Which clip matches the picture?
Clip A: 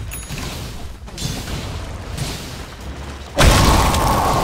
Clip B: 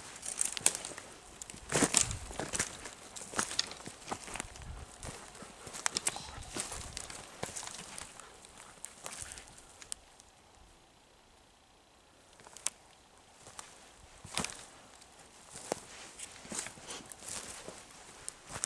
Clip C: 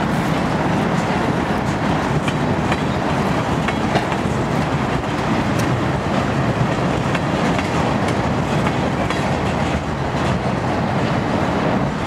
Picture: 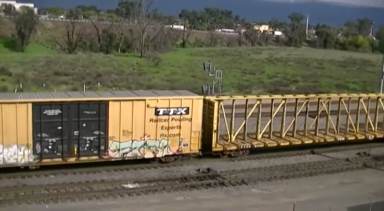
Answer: C